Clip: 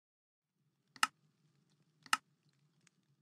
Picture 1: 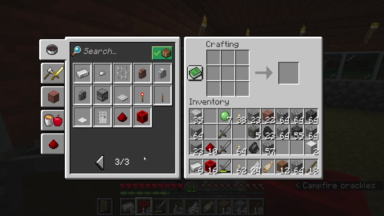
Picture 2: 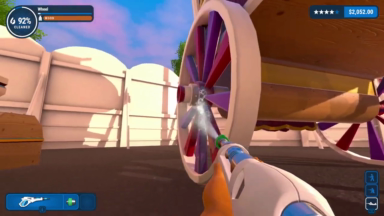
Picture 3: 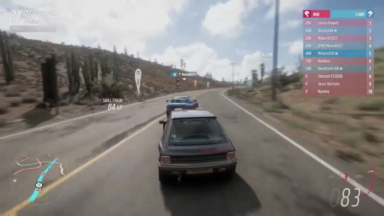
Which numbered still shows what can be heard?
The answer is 1